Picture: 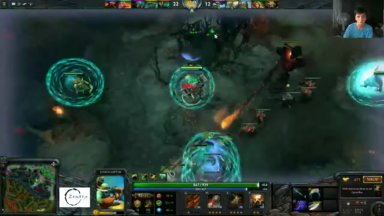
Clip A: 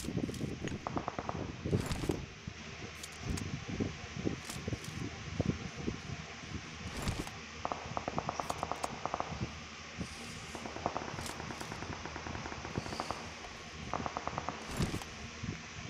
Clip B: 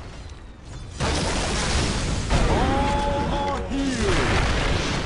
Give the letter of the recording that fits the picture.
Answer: B